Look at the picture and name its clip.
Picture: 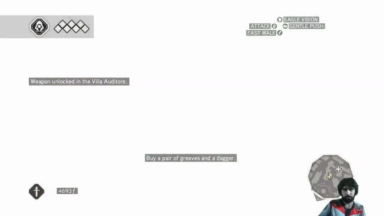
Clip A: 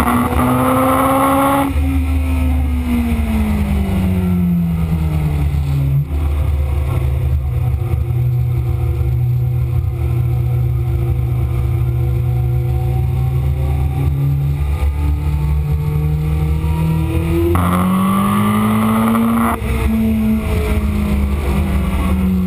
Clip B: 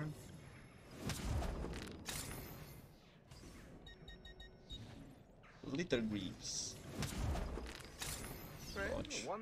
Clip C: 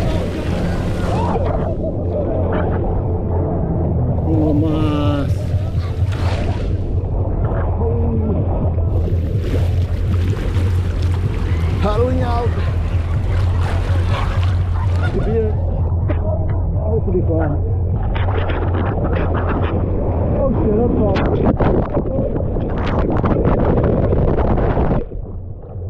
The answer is B